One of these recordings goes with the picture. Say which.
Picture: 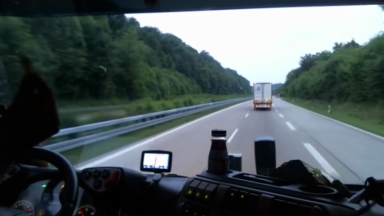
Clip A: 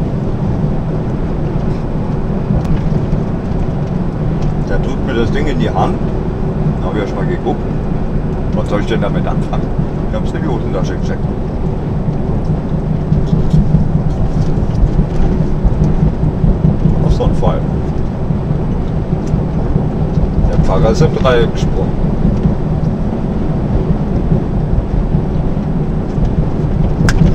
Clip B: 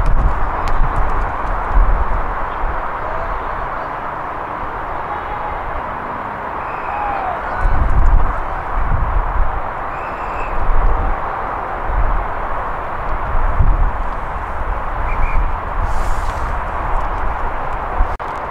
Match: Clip A